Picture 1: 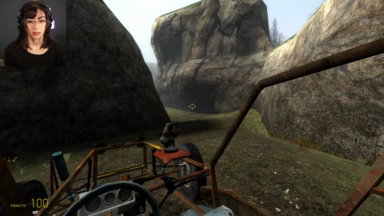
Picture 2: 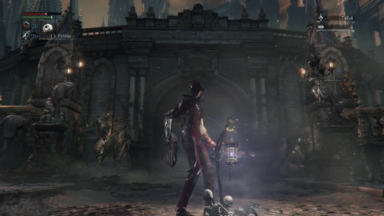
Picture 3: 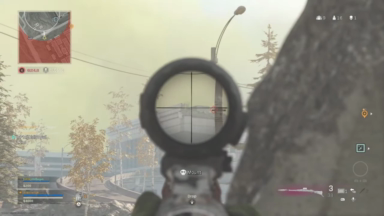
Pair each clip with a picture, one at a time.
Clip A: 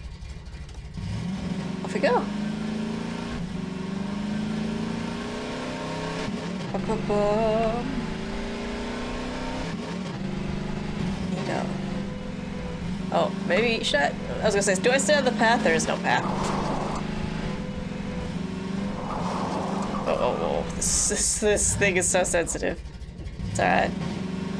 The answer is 1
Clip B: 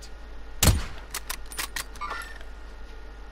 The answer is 3